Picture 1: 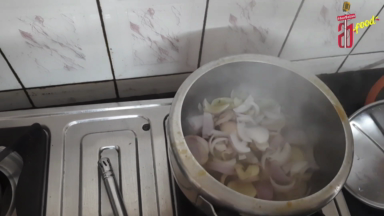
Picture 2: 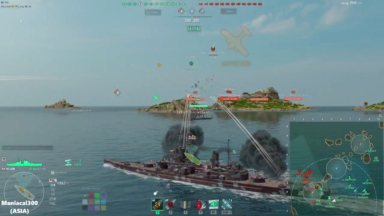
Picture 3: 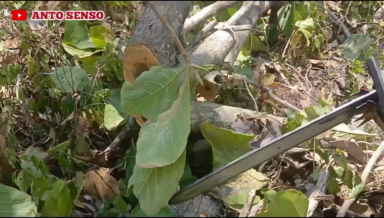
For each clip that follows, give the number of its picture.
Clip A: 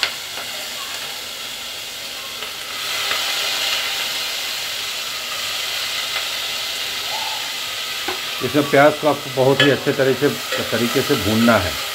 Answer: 1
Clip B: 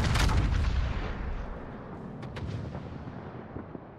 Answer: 2